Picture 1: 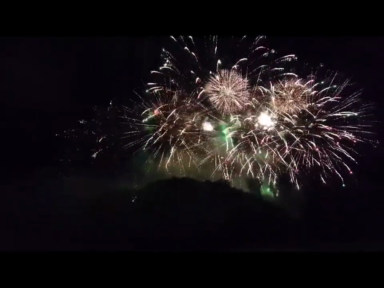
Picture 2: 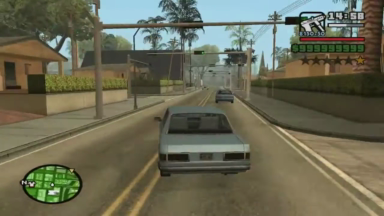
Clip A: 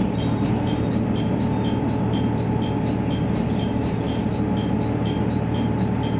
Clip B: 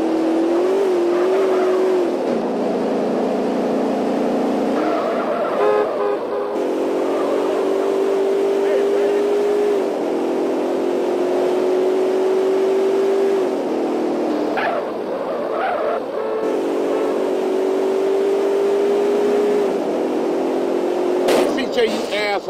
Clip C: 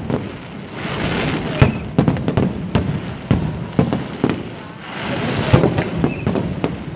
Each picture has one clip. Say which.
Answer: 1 C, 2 B